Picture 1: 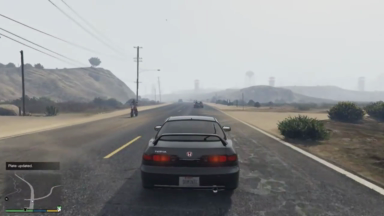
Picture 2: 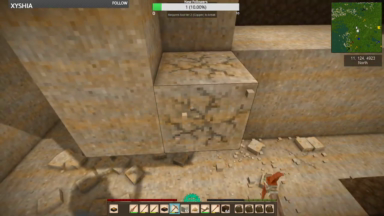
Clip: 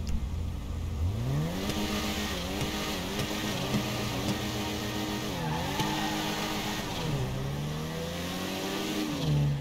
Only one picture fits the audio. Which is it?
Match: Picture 1